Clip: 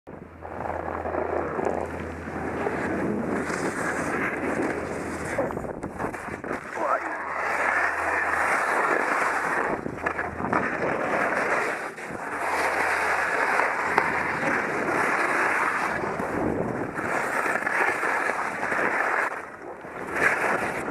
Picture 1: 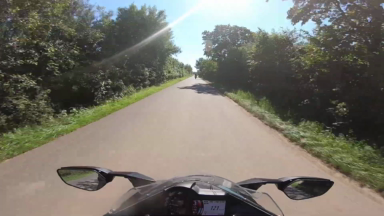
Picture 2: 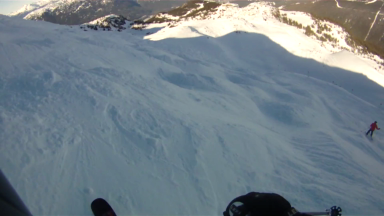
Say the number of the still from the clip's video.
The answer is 2